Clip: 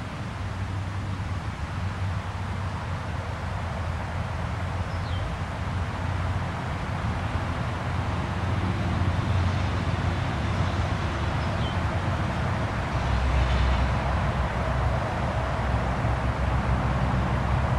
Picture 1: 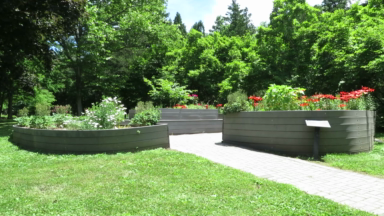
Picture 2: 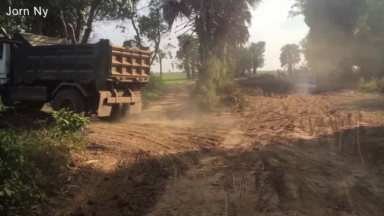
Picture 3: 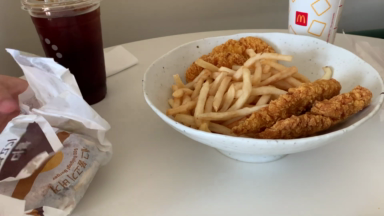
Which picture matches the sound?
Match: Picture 1